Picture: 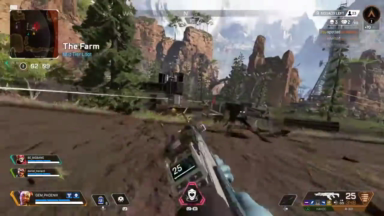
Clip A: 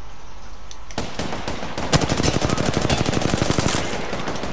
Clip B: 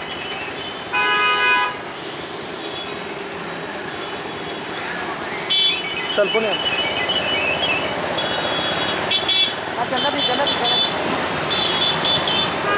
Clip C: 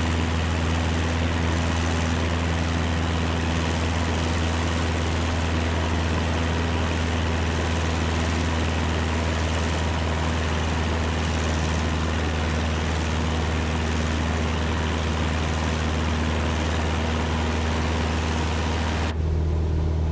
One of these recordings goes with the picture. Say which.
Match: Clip A